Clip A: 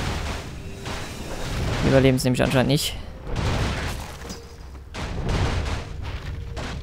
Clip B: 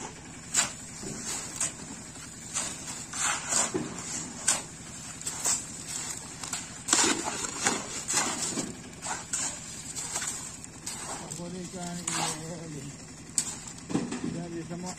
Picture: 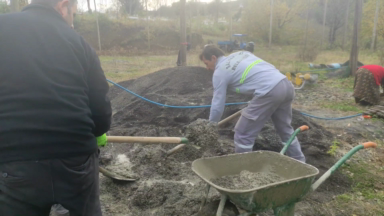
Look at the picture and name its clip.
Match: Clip B